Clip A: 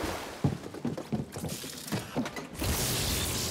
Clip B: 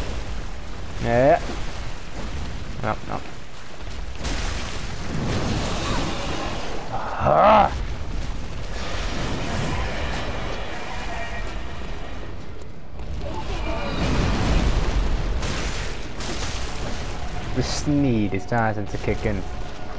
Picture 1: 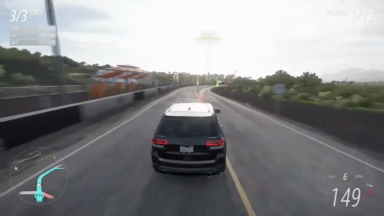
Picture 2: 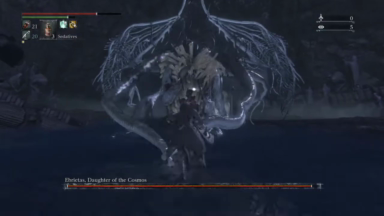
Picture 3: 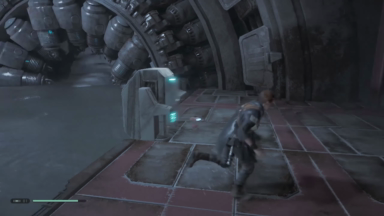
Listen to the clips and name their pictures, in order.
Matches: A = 3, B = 2